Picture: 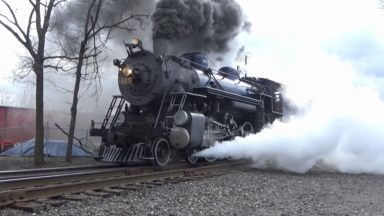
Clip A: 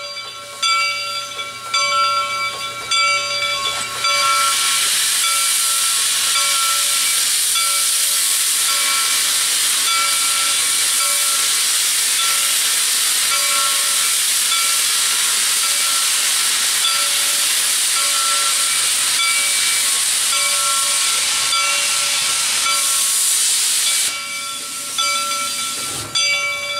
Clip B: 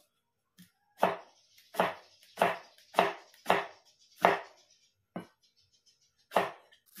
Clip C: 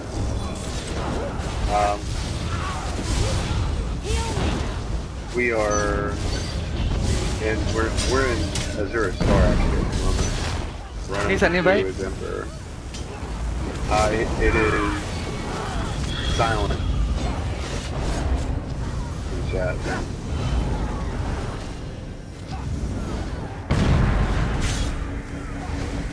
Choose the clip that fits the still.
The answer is A